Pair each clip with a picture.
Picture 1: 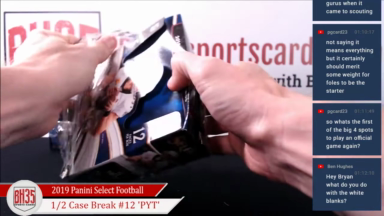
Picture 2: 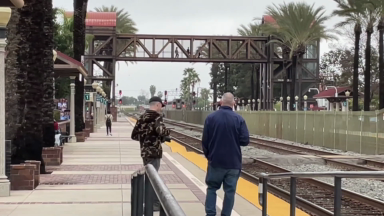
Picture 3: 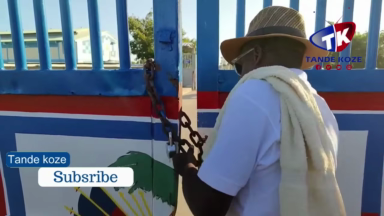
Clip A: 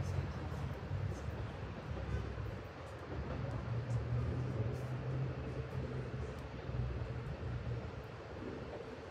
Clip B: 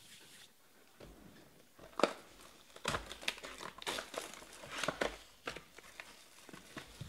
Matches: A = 2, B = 1